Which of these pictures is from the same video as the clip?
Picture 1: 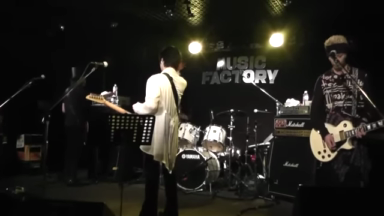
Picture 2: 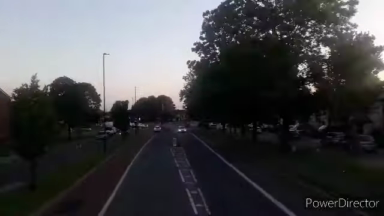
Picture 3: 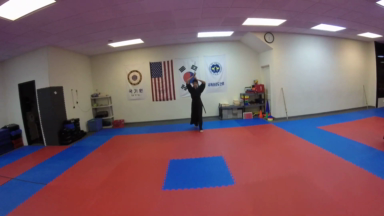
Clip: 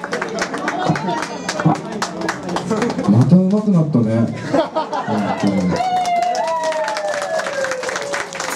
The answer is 1